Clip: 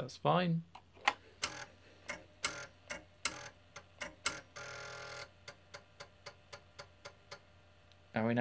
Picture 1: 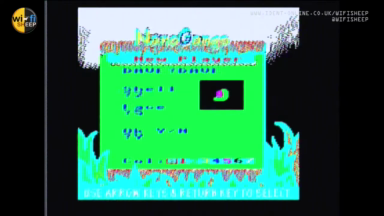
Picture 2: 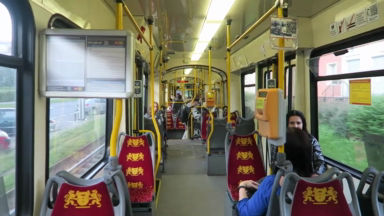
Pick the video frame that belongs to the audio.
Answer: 1